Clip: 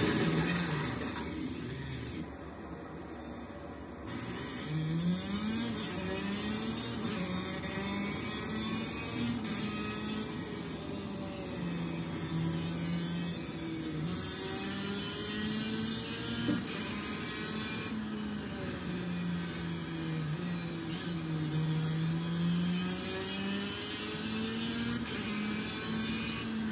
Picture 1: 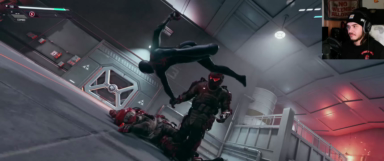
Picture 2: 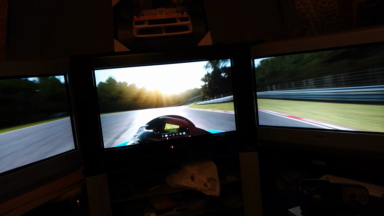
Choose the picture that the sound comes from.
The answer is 2